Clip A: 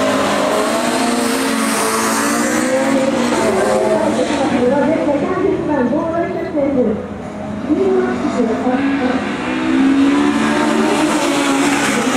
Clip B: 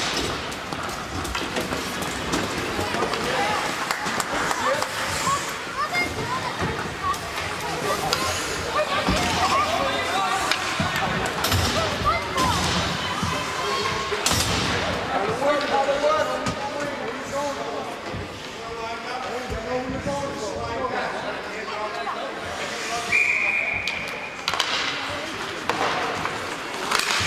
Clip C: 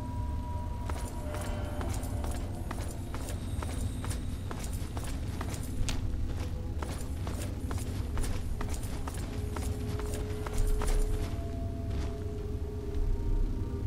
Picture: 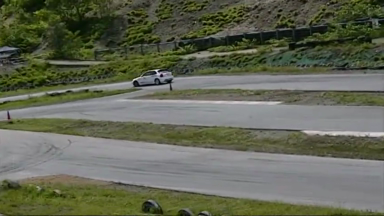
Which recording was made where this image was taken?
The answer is A